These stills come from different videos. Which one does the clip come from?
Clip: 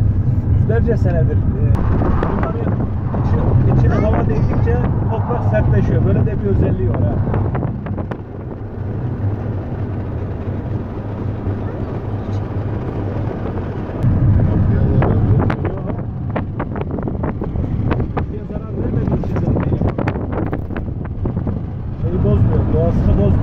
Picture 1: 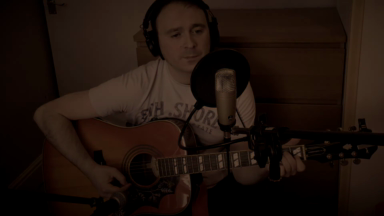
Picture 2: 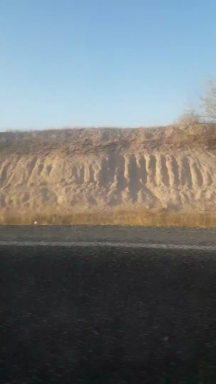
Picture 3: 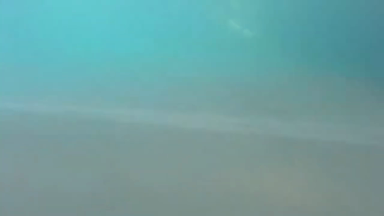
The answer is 2